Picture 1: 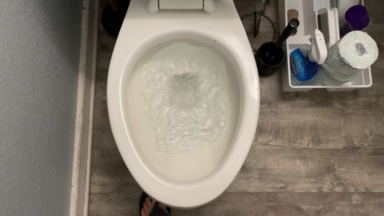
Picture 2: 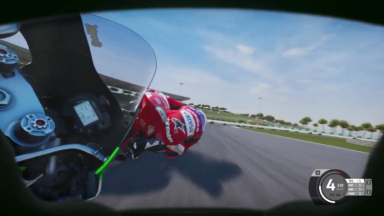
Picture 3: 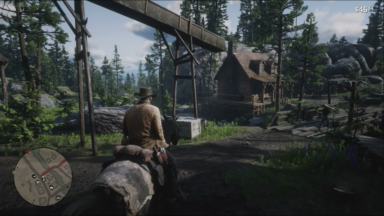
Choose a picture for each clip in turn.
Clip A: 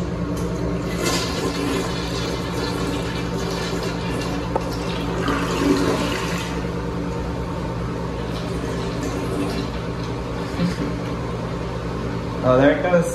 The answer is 1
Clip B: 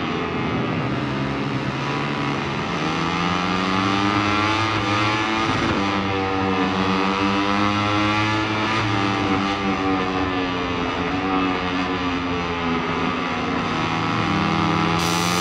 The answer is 2